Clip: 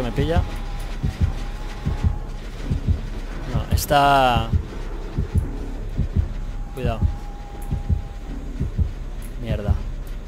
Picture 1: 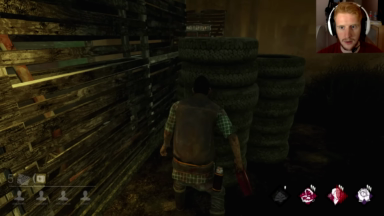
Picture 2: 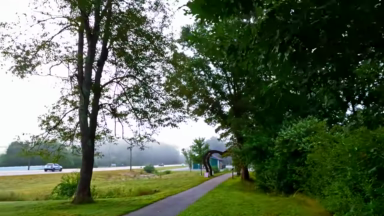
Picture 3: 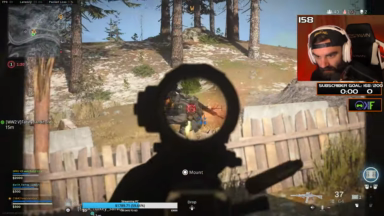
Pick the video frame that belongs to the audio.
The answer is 1